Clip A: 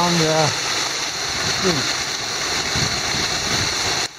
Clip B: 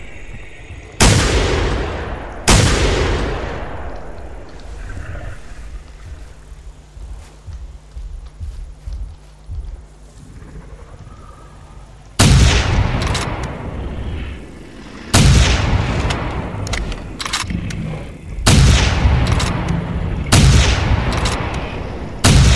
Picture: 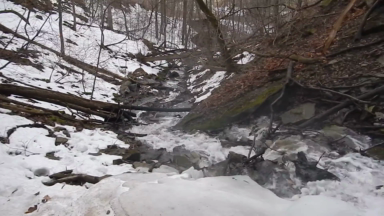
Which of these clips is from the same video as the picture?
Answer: A